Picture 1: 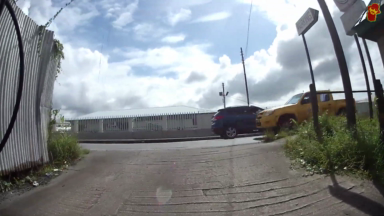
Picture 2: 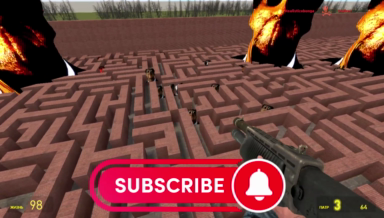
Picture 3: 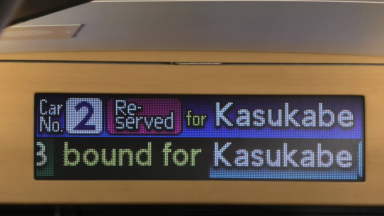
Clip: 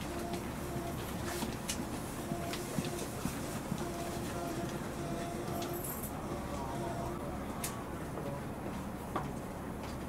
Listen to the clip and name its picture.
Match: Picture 3